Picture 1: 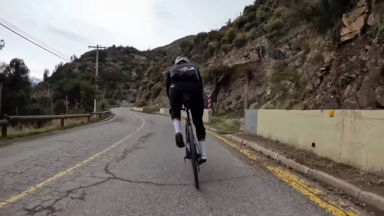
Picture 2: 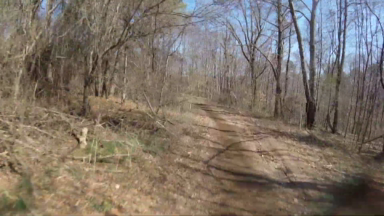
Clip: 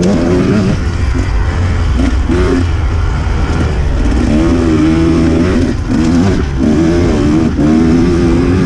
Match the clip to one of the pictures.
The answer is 2